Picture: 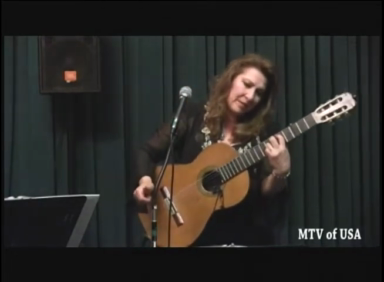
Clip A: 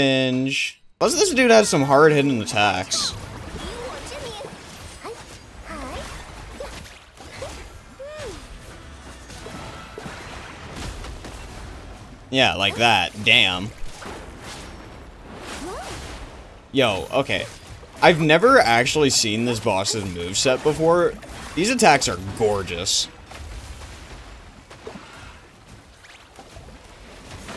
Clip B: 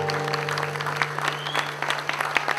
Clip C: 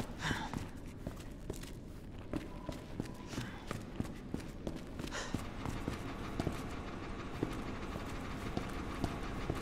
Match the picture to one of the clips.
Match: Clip B